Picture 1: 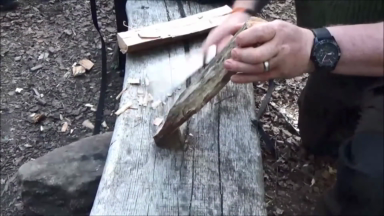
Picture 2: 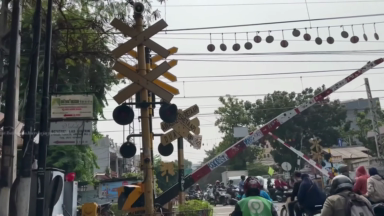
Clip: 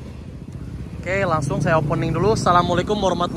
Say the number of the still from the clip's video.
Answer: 2